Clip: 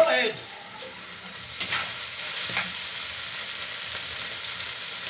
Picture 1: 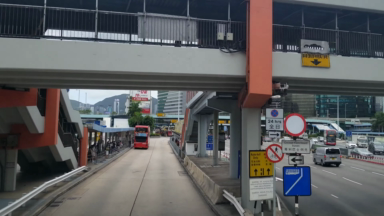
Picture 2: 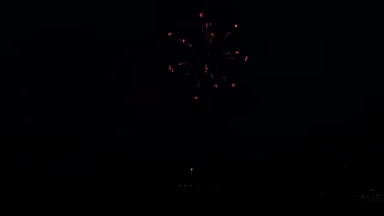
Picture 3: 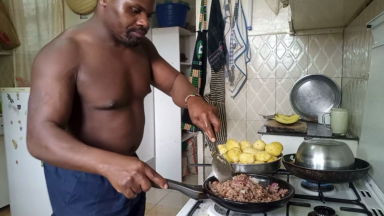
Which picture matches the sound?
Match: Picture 3